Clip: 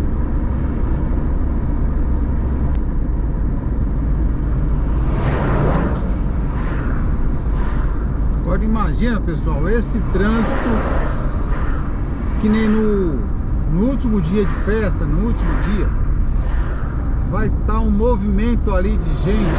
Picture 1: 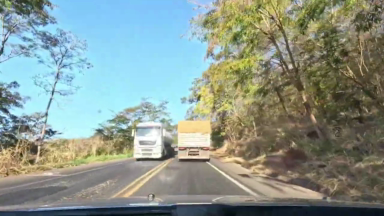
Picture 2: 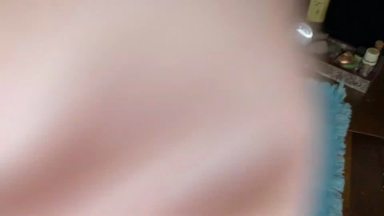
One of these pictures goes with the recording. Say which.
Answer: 1